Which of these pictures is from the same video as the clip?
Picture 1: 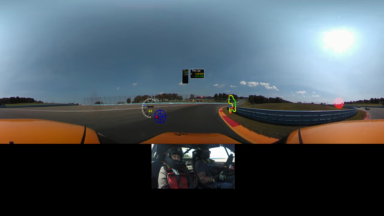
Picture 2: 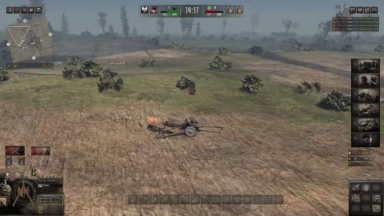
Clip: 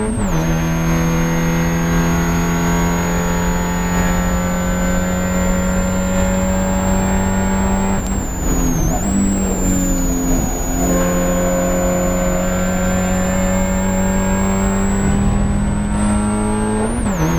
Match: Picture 1